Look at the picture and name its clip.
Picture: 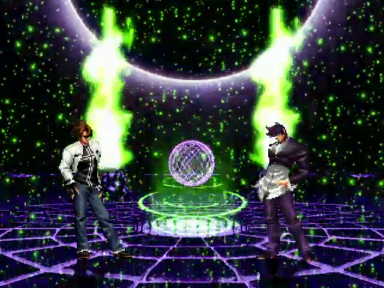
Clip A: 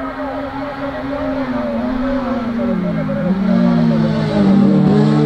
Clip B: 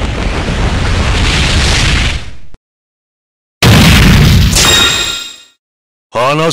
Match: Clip B